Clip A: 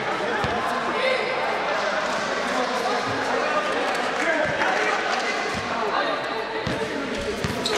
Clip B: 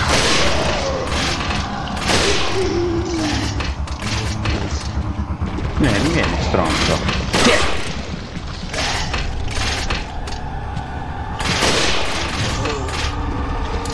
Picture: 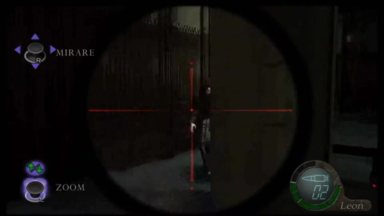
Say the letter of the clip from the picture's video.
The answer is B